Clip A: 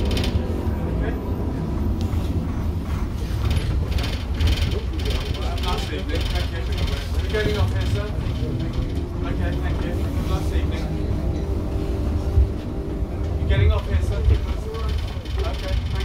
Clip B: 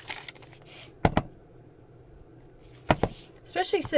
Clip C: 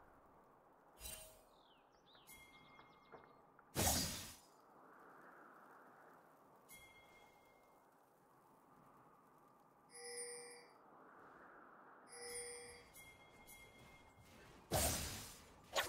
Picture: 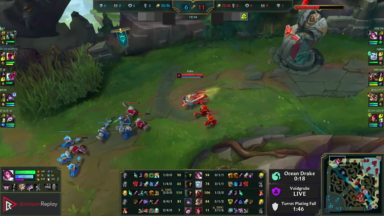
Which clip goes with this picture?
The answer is C